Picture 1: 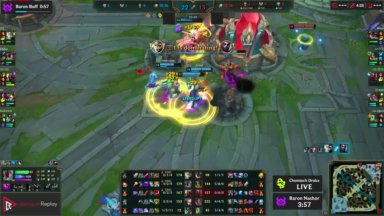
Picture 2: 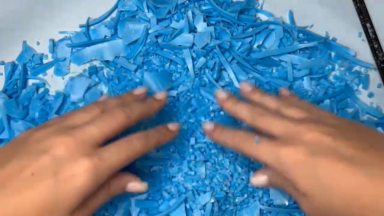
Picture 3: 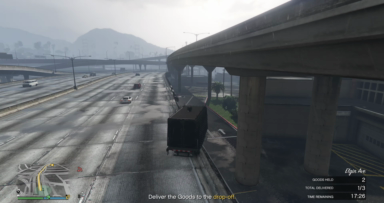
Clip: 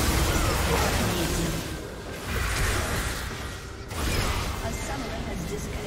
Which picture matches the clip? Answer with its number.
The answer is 1